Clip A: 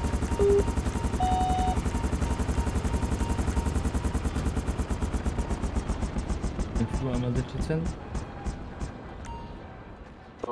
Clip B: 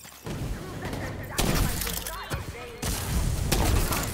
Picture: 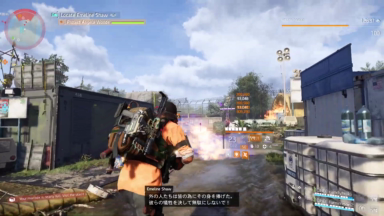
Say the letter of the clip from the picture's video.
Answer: B